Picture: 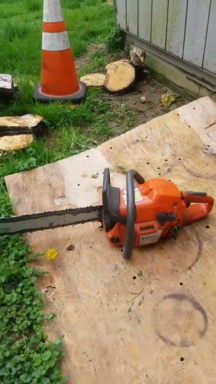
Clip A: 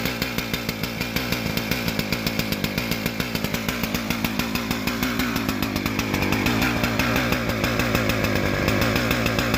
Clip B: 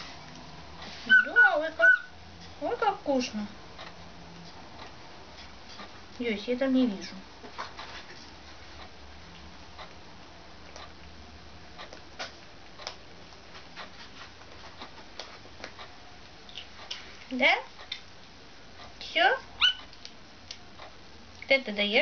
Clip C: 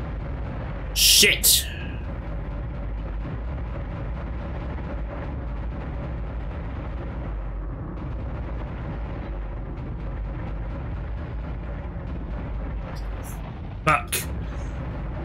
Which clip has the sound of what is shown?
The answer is A